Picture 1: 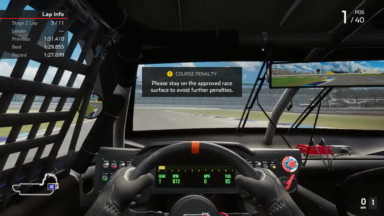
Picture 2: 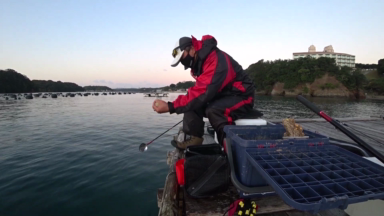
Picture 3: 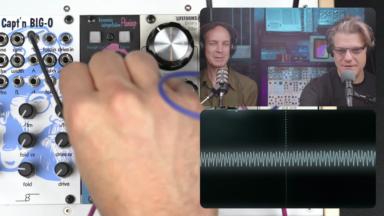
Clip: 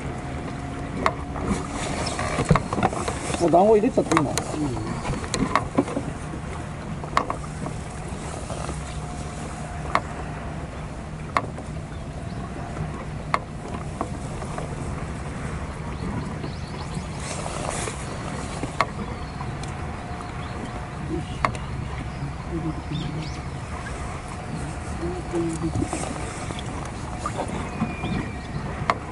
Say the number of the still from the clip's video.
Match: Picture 2